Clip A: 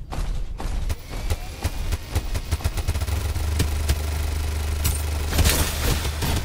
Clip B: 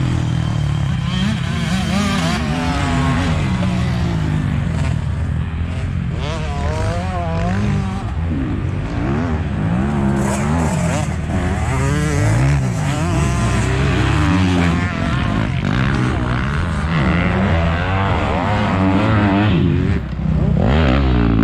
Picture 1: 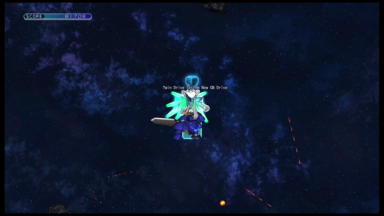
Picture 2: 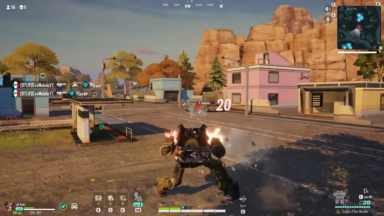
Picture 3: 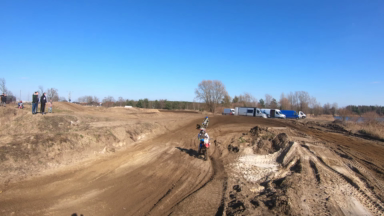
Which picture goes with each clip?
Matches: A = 2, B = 3